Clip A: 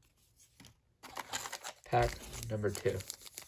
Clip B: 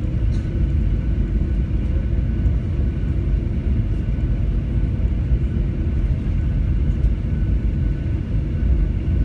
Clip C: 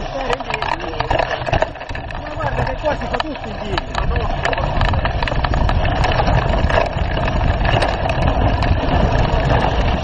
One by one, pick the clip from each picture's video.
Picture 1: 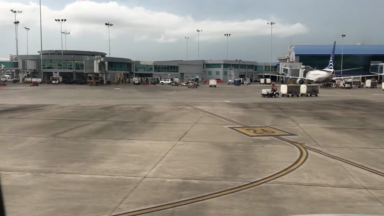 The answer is B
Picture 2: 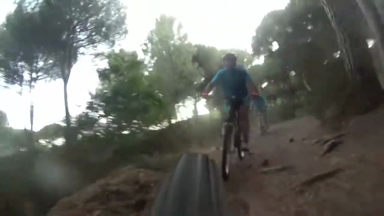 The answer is C